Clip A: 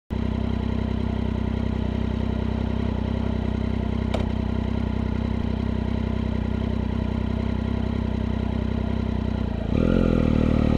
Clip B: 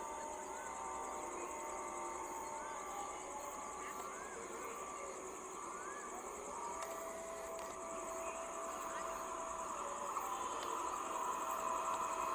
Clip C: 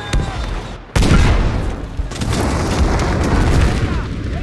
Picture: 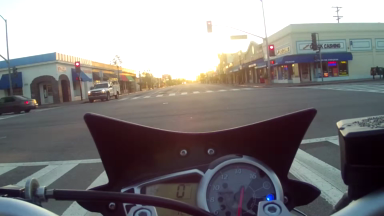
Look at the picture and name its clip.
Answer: A